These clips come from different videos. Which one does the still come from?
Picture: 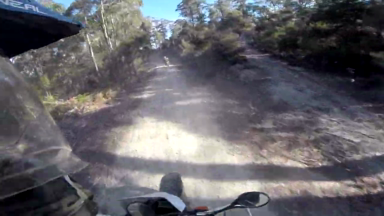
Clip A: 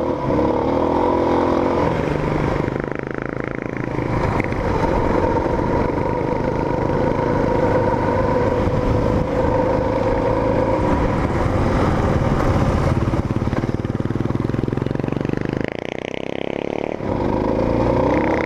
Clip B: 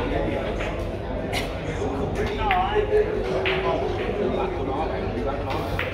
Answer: A